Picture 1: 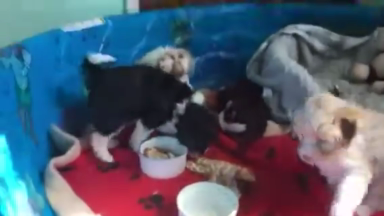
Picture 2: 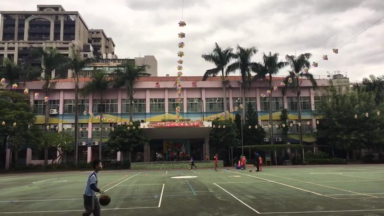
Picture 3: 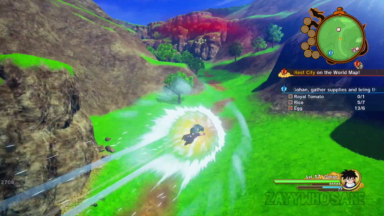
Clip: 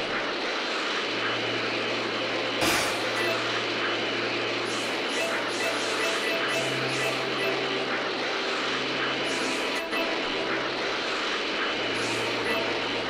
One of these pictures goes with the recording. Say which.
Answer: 3